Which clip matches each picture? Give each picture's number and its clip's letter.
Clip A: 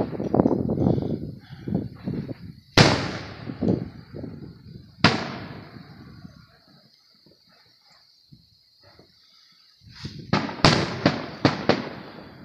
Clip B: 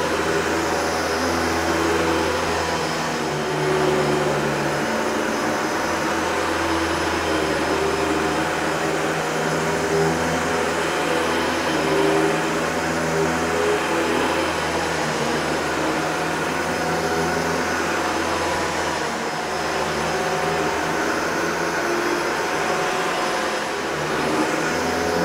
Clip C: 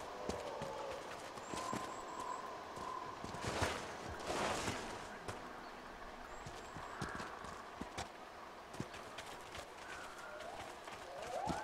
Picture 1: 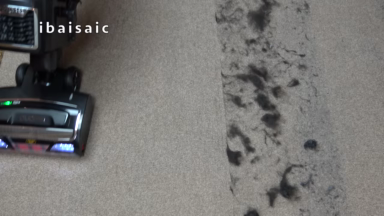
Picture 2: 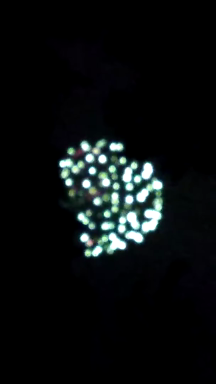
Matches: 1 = B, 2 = A